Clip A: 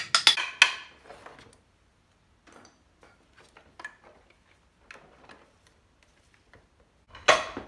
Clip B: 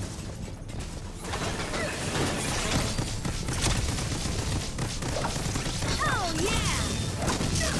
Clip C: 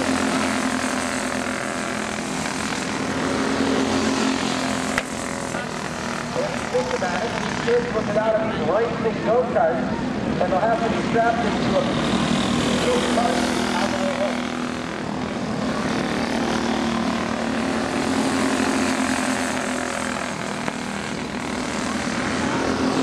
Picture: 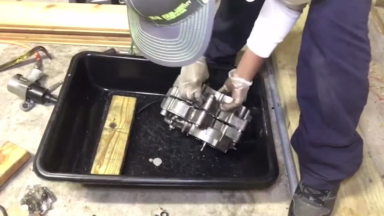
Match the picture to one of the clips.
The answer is A